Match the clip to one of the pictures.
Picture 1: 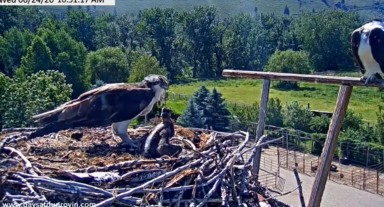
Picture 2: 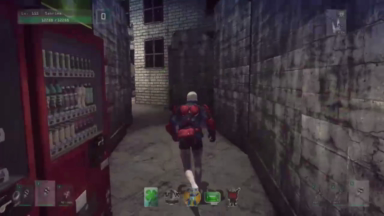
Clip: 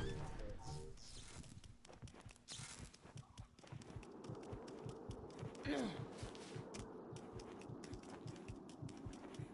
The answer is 2